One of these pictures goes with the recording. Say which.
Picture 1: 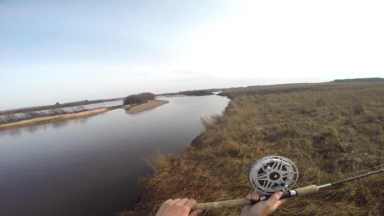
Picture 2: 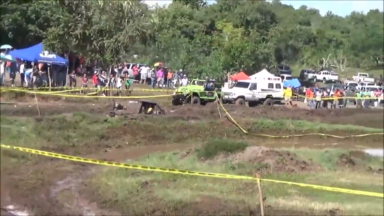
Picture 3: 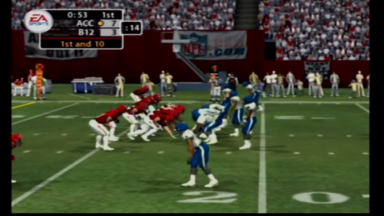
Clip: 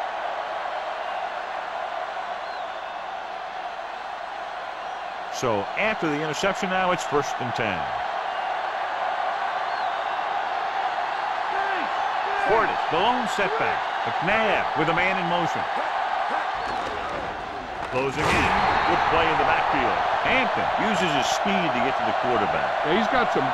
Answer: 3